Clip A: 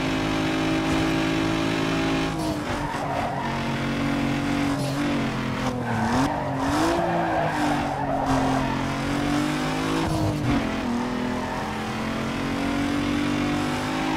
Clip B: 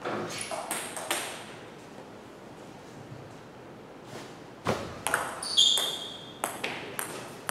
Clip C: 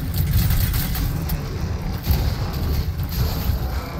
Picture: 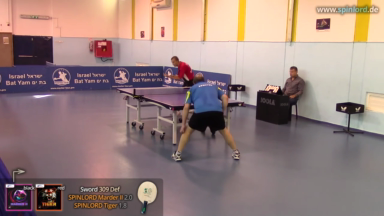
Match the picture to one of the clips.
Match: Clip B